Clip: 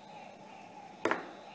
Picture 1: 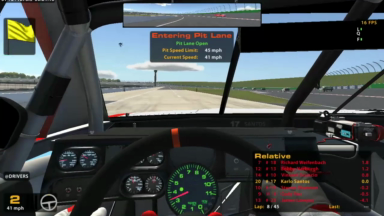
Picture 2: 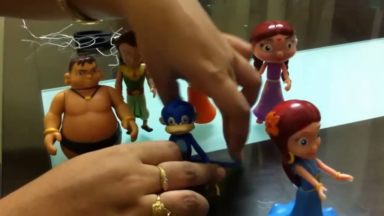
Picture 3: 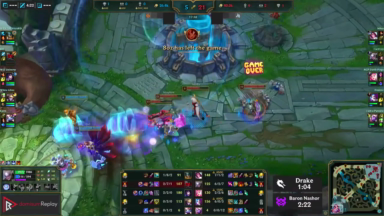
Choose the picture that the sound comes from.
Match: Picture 2